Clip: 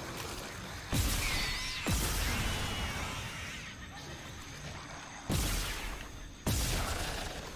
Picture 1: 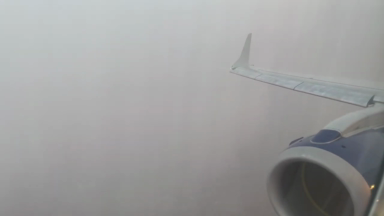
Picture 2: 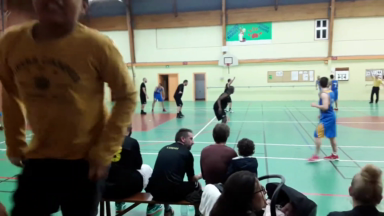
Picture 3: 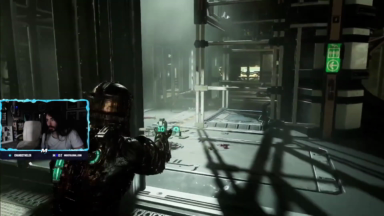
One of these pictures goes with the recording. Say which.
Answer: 3